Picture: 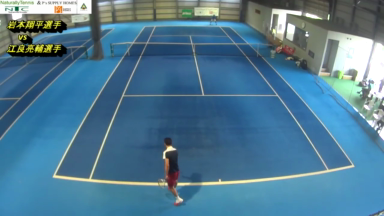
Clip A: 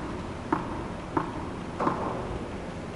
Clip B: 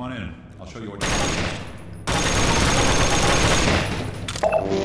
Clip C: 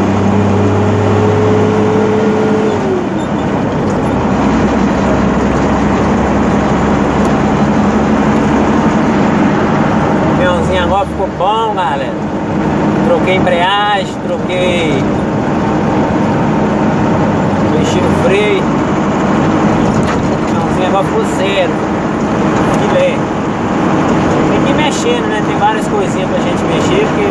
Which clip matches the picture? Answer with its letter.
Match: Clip A